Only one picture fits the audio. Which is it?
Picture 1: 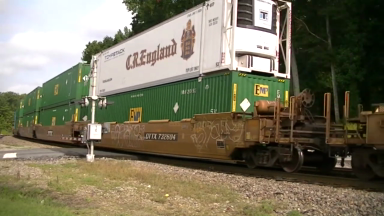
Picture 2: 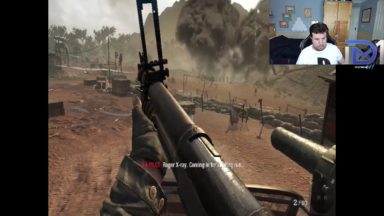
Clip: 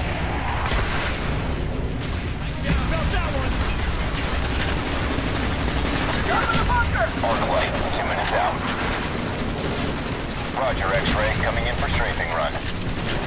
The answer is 2